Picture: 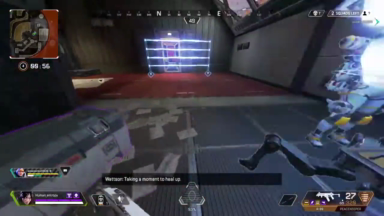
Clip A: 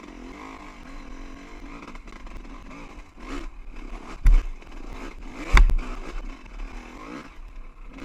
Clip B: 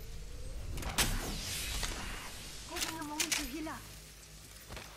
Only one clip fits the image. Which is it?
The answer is B